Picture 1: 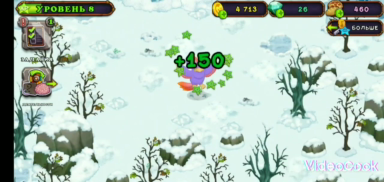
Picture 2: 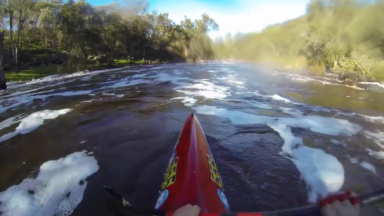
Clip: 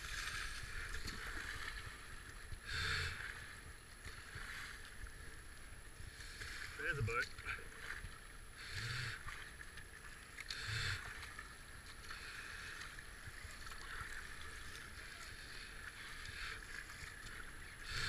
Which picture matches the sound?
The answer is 2